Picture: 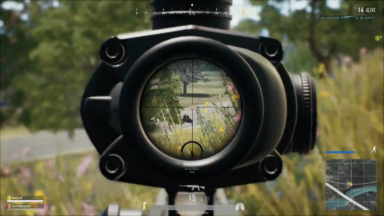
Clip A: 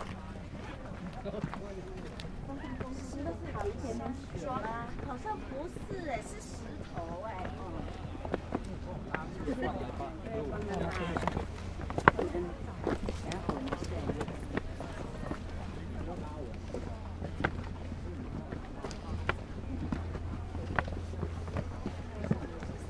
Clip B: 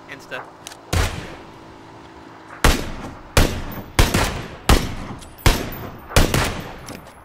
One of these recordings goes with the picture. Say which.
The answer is B